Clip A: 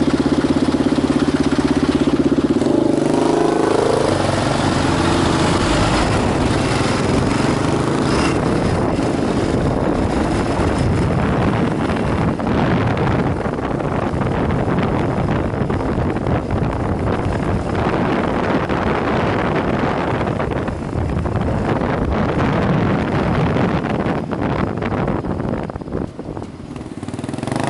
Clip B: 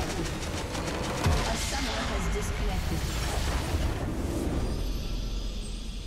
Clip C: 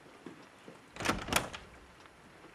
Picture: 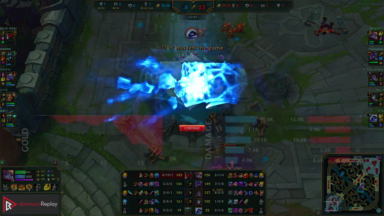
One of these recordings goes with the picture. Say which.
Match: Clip B